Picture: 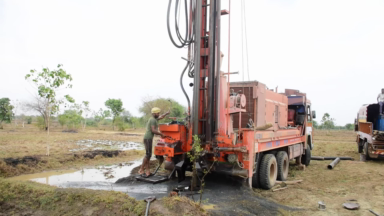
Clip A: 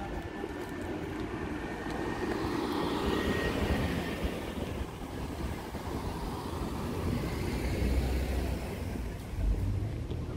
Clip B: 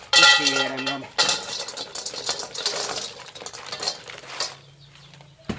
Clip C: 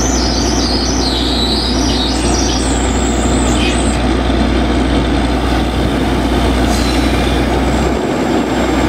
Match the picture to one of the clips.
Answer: C